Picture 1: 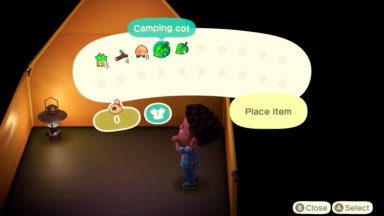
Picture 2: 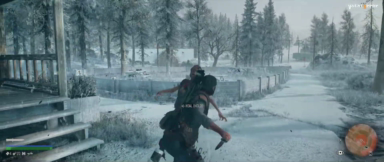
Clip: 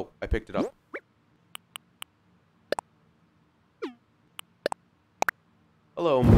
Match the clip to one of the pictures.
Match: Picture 1